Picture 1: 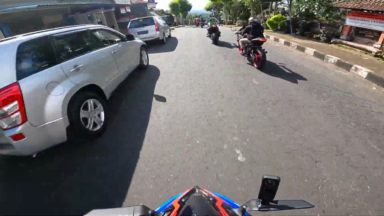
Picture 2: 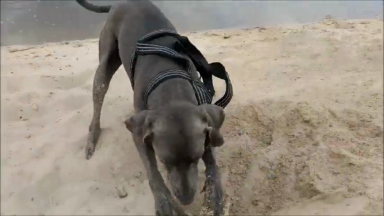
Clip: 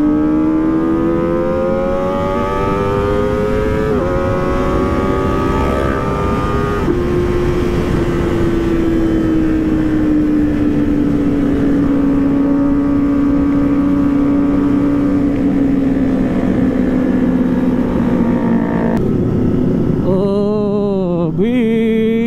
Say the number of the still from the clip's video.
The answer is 1